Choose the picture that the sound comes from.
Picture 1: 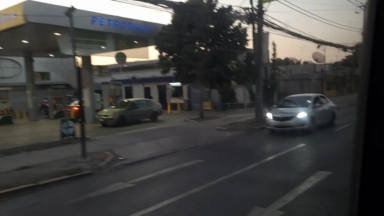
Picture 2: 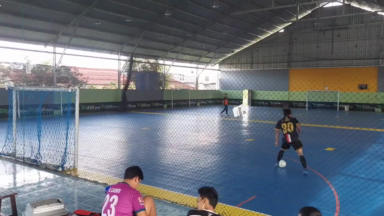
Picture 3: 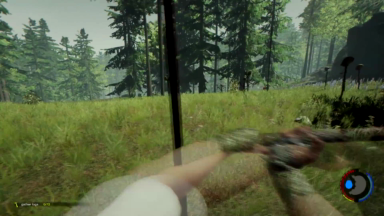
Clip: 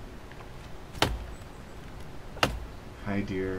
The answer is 3